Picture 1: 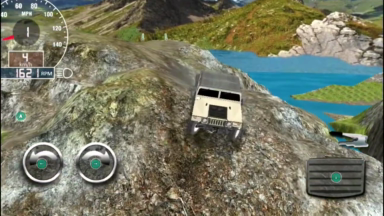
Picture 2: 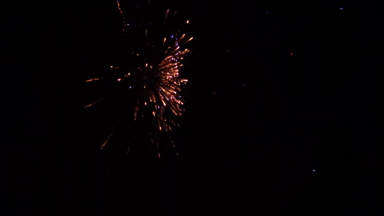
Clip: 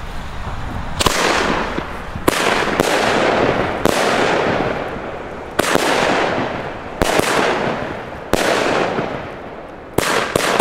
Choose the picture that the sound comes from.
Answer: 2